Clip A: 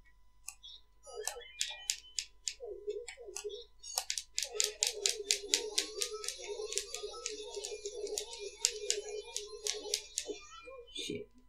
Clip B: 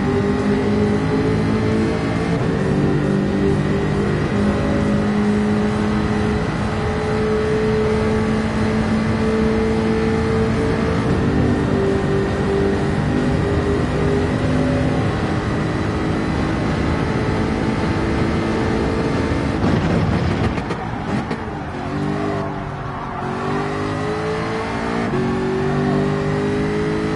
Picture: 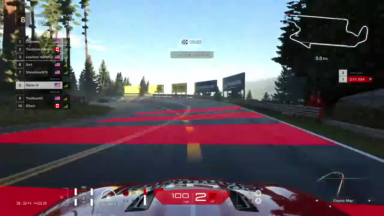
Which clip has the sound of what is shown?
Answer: B